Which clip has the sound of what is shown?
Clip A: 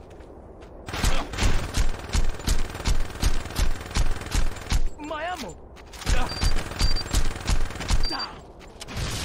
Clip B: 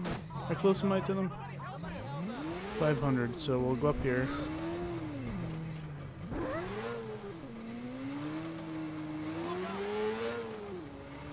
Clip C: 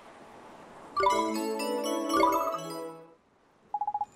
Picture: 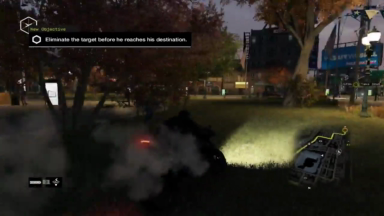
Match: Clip B